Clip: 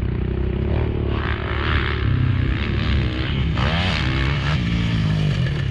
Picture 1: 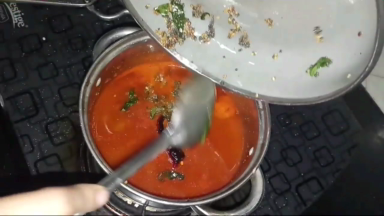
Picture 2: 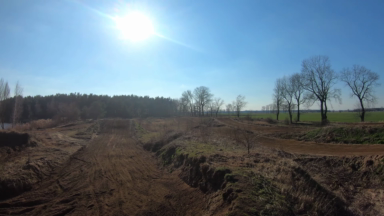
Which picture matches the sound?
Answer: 2